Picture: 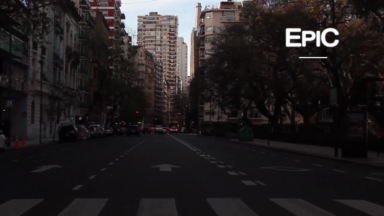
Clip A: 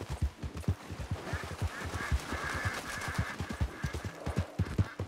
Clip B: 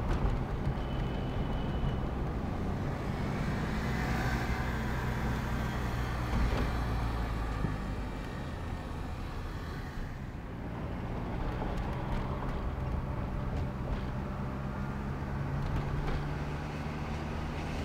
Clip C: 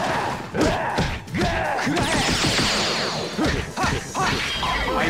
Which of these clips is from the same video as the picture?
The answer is B